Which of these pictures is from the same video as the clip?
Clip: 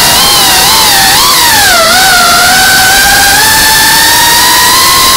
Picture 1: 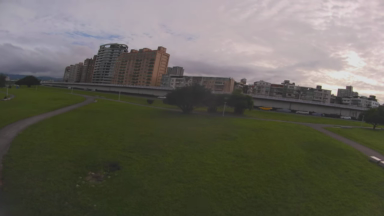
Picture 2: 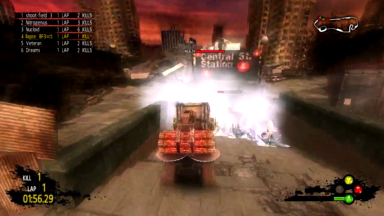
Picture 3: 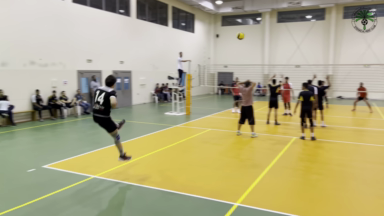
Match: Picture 1